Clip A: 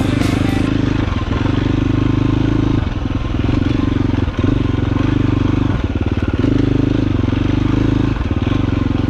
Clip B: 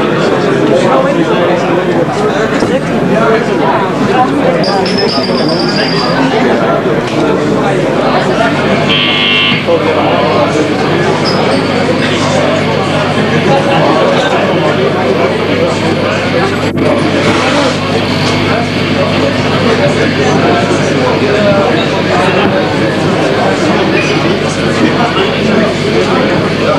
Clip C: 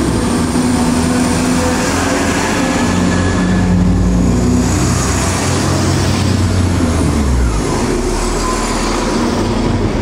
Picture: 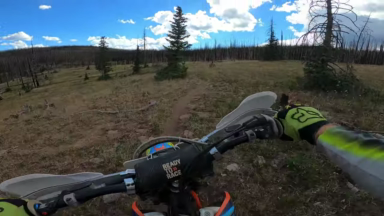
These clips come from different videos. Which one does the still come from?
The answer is A